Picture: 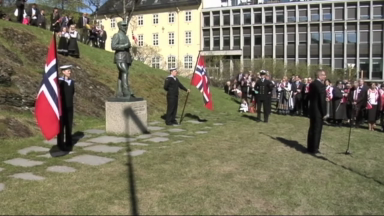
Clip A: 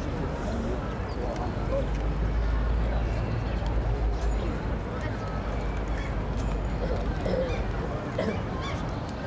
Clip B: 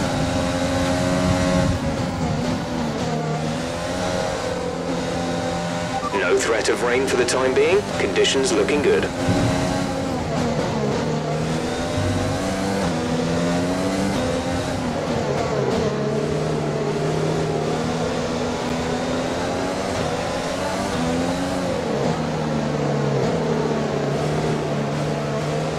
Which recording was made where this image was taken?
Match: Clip A